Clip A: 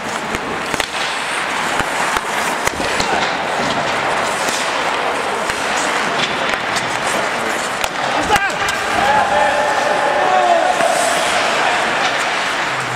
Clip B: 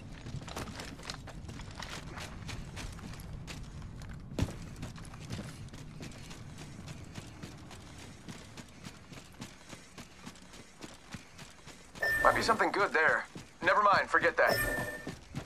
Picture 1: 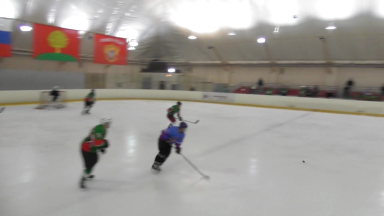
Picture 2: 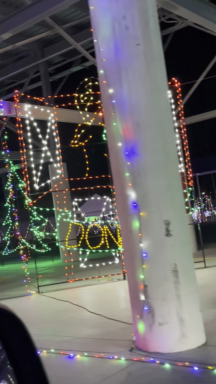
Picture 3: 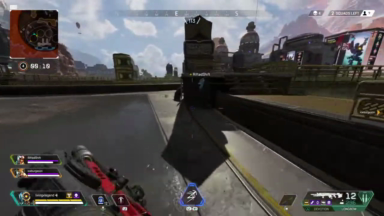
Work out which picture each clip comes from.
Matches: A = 1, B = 3